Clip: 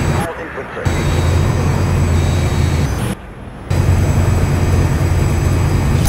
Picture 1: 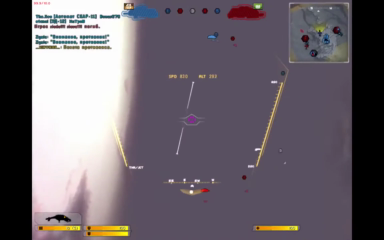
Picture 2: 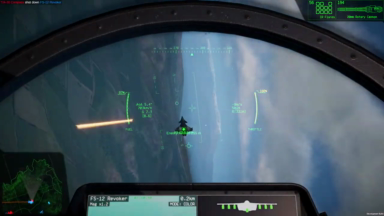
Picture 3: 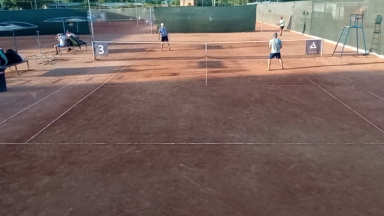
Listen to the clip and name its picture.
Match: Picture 1